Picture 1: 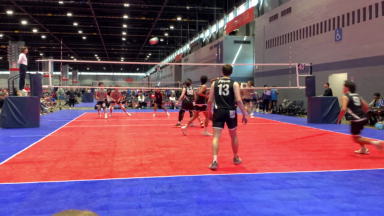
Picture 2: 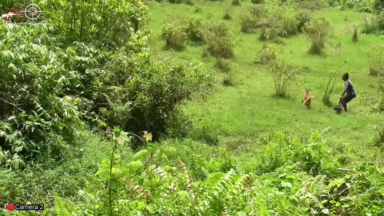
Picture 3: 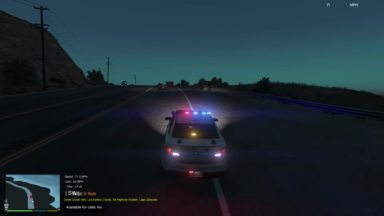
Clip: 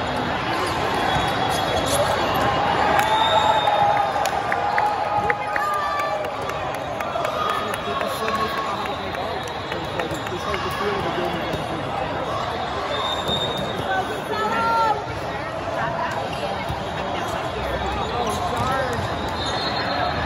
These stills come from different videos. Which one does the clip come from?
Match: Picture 1